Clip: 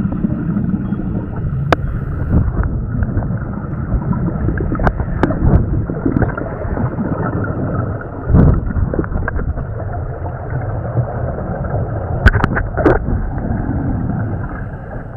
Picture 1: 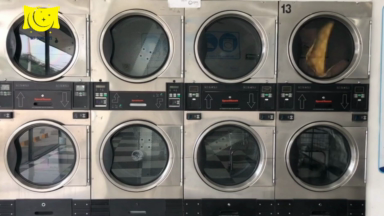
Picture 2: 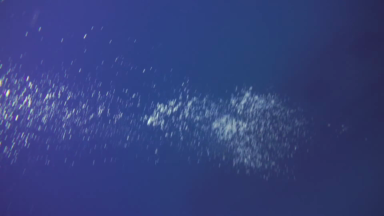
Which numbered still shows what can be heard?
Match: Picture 2